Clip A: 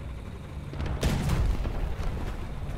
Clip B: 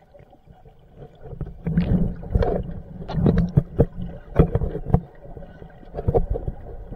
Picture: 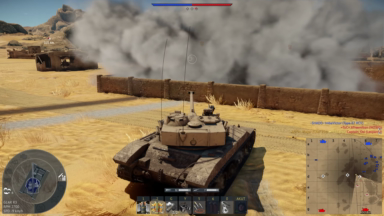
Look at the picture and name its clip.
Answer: A